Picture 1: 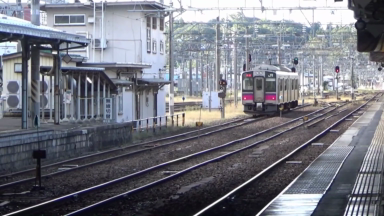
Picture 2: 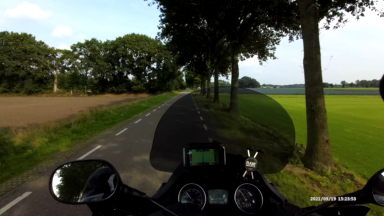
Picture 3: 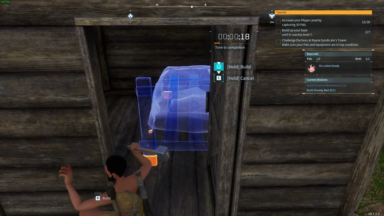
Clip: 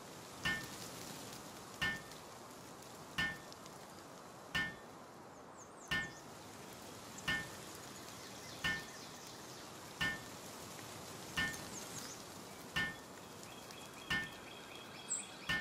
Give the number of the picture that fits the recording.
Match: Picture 3